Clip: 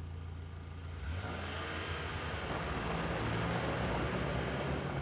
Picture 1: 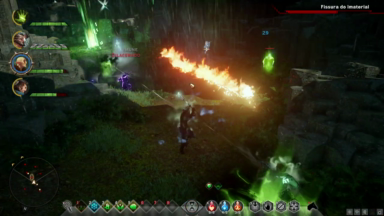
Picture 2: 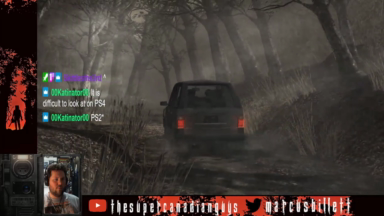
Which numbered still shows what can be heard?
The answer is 2